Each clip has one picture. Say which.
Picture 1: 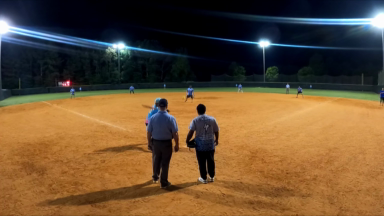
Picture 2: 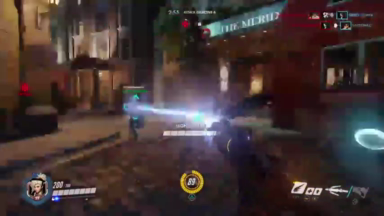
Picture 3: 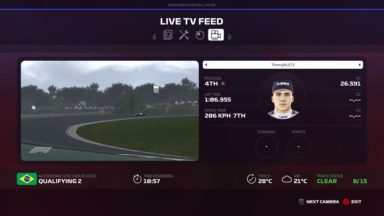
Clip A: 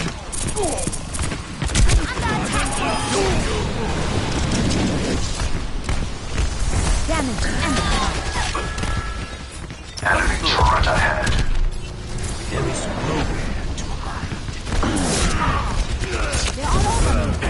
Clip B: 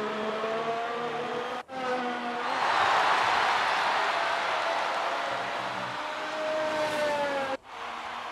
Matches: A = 2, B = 3